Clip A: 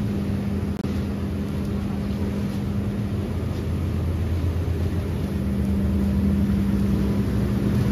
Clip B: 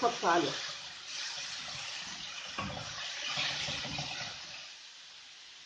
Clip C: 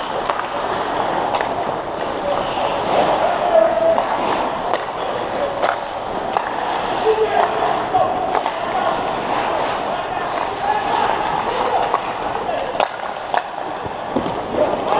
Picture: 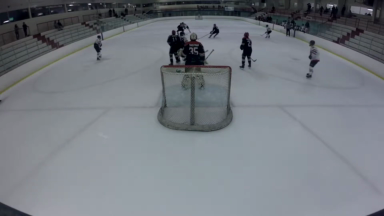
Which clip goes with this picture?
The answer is C